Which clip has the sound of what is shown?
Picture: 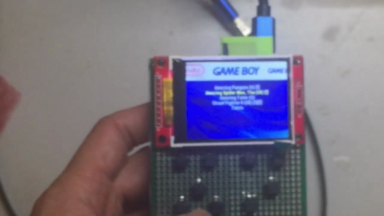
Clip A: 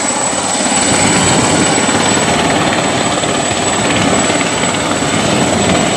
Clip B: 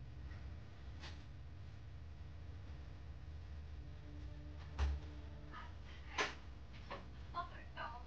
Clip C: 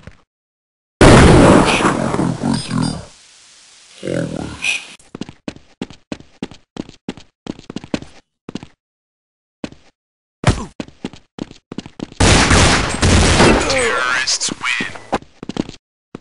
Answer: B